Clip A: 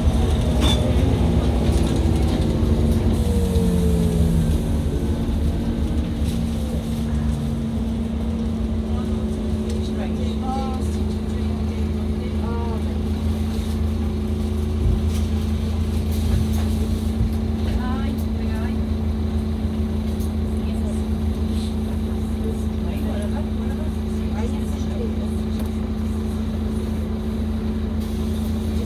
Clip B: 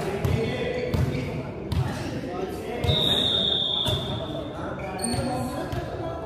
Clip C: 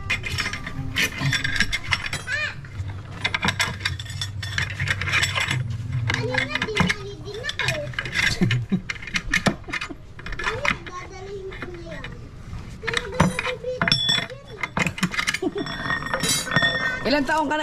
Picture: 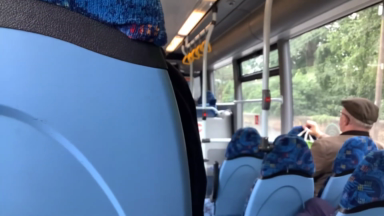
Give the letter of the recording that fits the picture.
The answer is A